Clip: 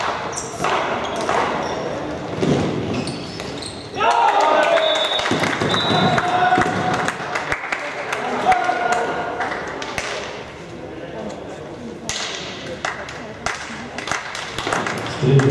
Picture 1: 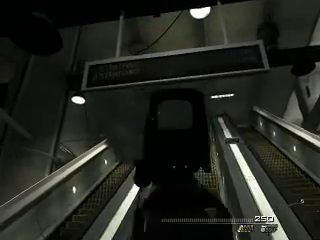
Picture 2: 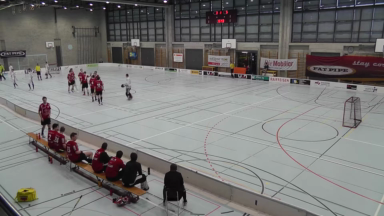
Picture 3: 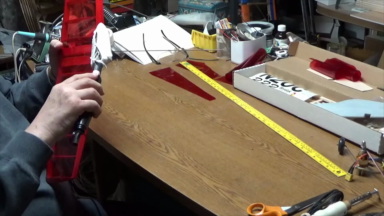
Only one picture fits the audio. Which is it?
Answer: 2